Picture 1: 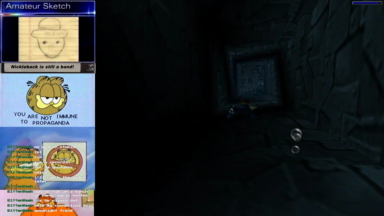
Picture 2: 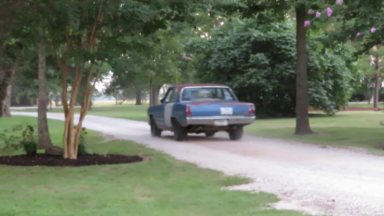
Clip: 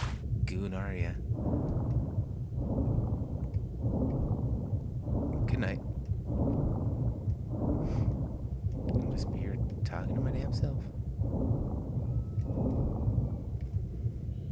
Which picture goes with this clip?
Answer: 1